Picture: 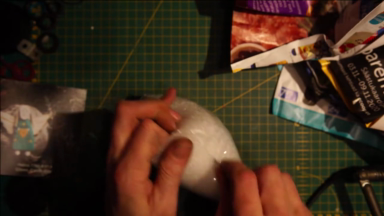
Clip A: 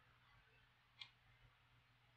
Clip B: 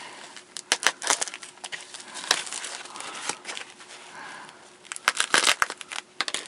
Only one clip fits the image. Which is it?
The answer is B